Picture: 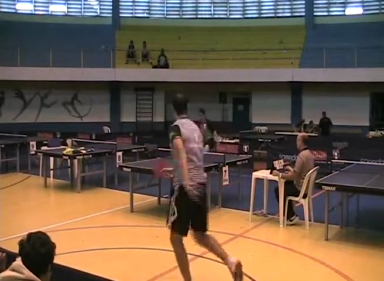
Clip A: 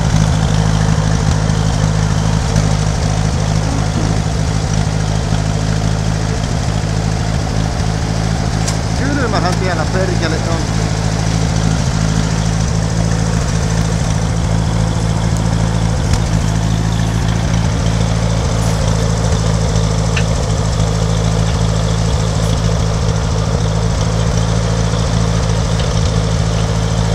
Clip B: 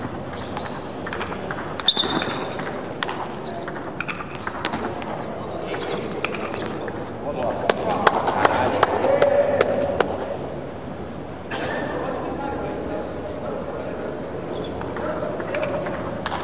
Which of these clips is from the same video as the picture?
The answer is B